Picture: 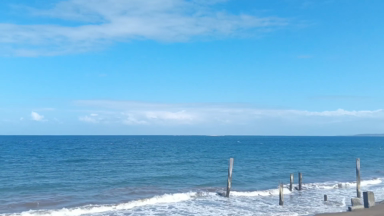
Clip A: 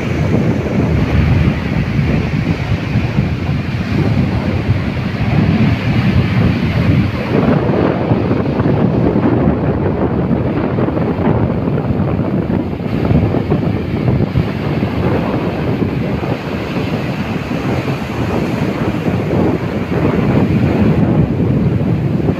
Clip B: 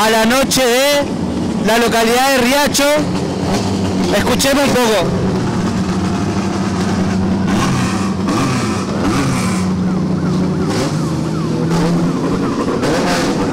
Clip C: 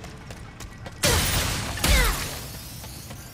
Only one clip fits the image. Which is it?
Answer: A